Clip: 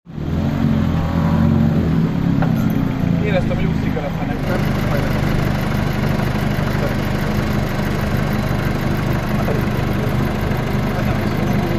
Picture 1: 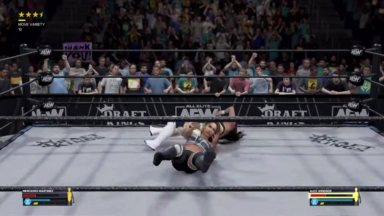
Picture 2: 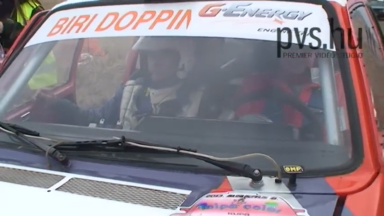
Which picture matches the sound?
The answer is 2